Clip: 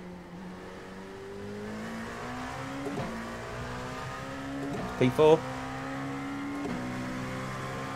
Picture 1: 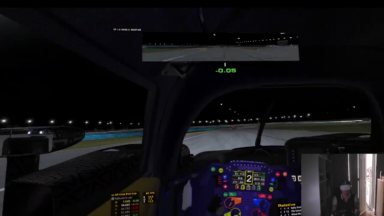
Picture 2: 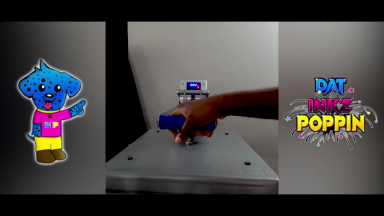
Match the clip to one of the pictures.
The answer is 1